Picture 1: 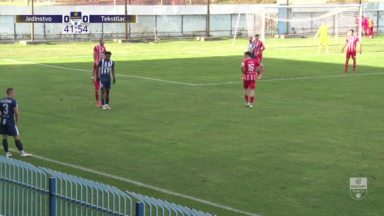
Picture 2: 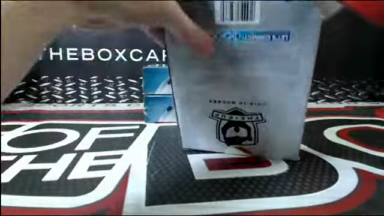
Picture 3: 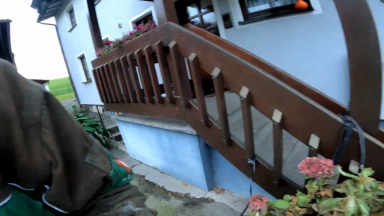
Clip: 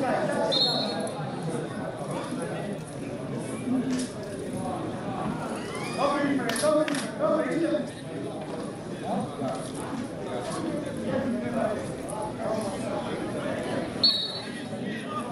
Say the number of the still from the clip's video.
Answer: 1